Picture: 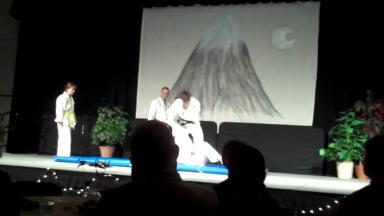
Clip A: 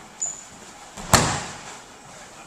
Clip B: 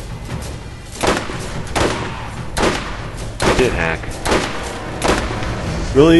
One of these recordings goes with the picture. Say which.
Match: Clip A